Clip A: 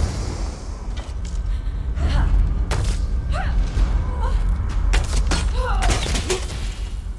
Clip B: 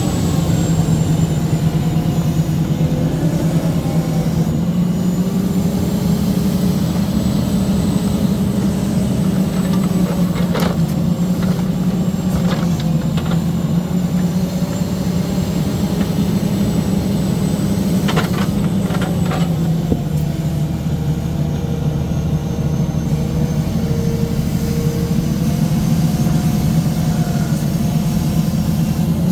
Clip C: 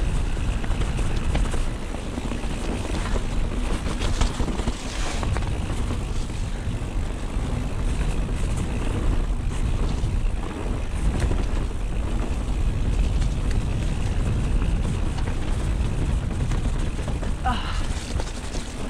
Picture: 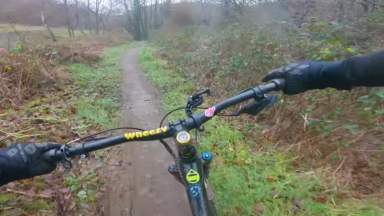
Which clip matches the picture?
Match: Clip C